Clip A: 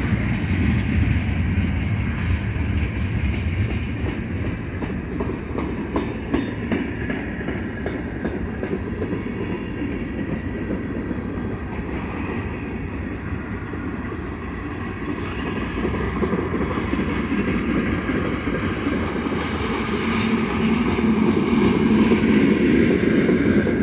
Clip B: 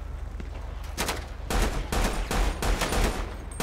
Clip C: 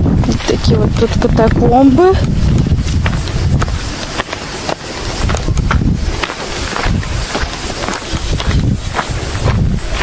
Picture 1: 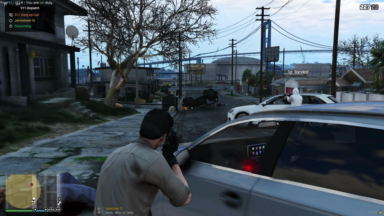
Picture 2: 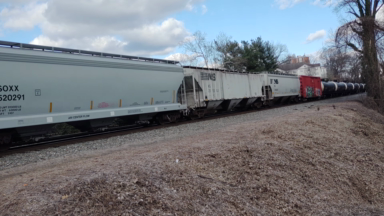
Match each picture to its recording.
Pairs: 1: B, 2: A